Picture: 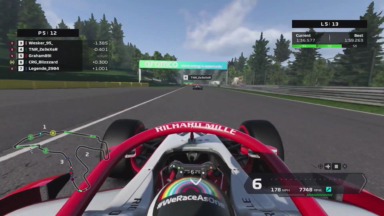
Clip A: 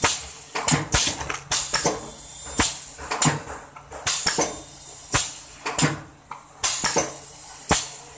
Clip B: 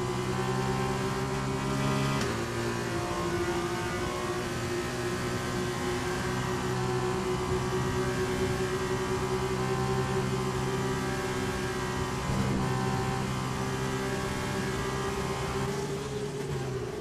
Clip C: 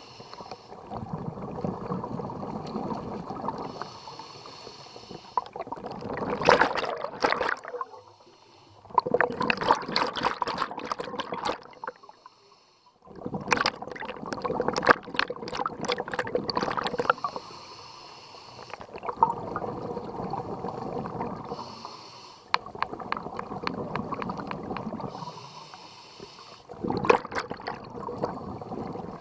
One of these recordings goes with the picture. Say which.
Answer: B